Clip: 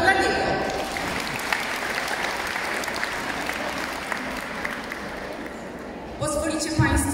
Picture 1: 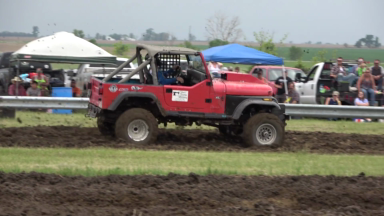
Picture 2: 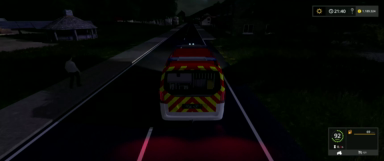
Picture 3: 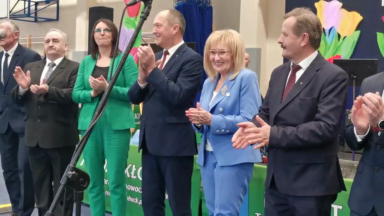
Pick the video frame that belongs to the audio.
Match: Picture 3